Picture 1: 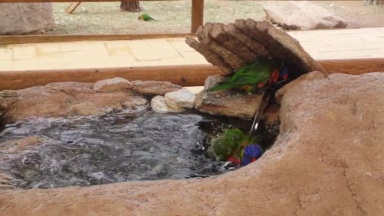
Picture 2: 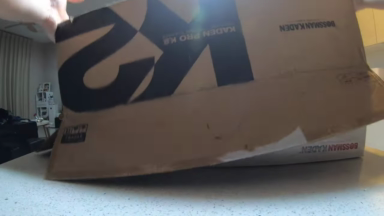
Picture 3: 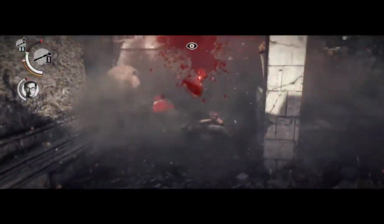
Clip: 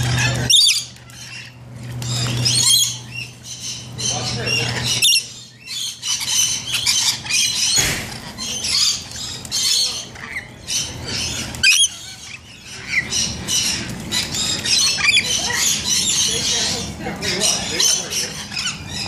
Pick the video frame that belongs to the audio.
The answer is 1